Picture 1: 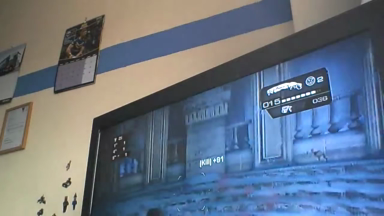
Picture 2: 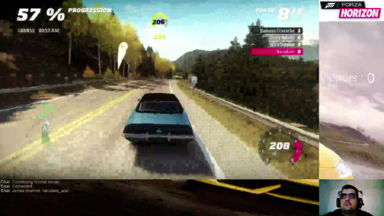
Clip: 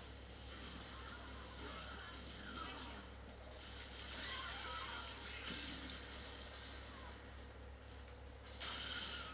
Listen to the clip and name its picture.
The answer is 1